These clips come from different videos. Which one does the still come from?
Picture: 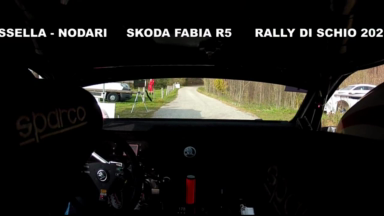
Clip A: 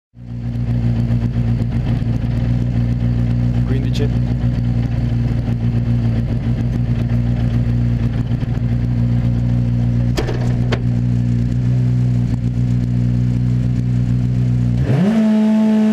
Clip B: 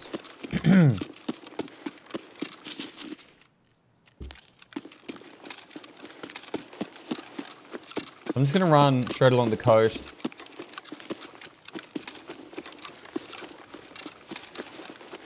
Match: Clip A